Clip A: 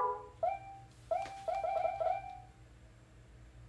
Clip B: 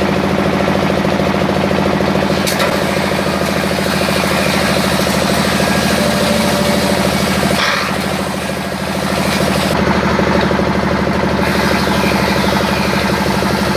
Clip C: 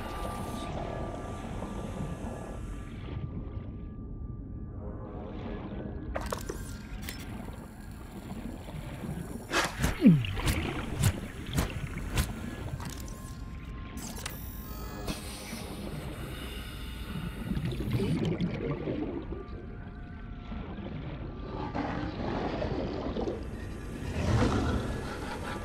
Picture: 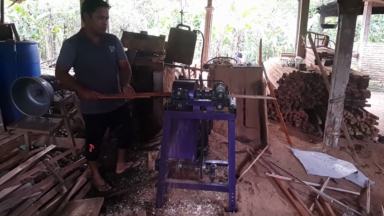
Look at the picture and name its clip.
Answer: B